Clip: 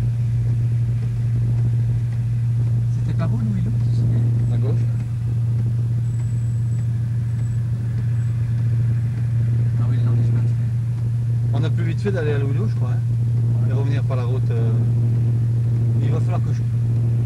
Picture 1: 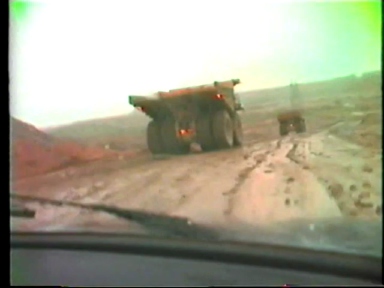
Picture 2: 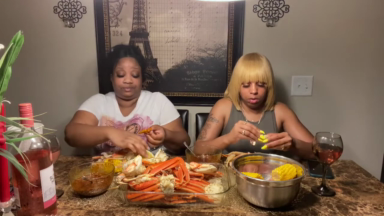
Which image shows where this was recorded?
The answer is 1